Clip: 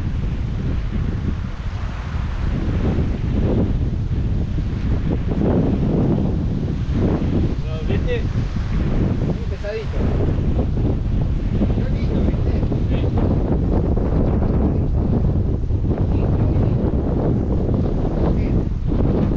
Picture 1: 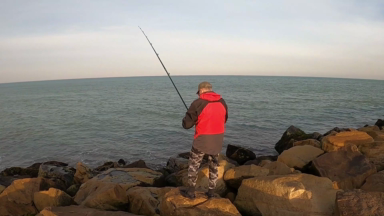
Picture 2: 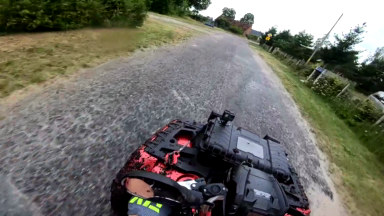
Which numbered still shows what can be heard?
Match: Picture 1